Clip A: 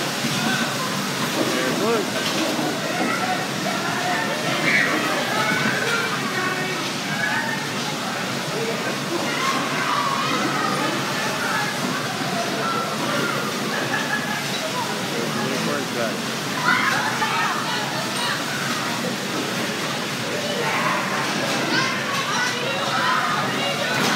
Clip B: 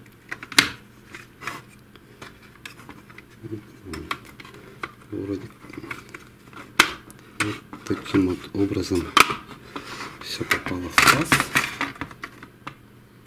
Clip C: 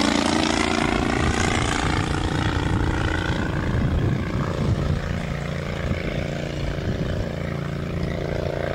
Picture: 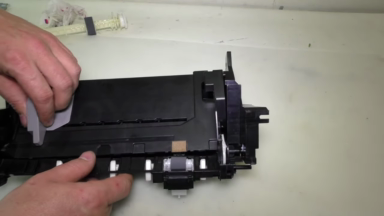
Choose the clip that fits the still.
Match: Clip B